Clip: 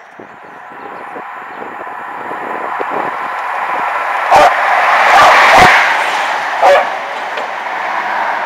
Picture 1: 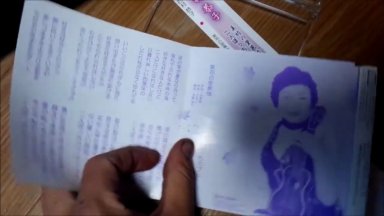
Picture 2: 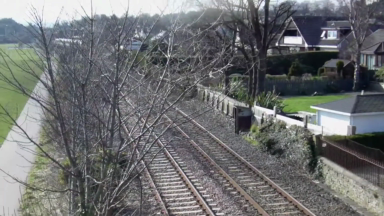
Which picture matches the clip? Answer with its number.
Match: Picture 2